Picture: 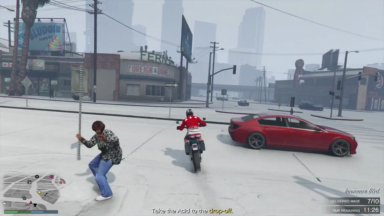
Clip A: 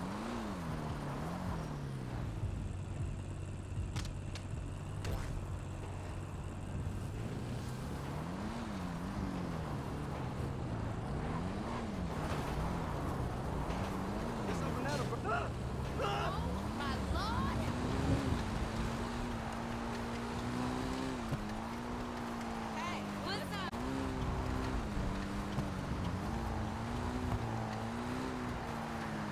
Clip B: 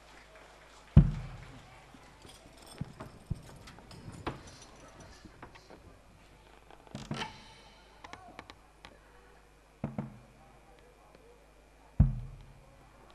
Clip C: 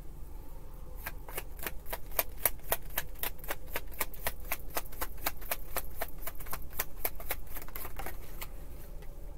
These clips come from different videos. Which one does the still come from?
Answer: A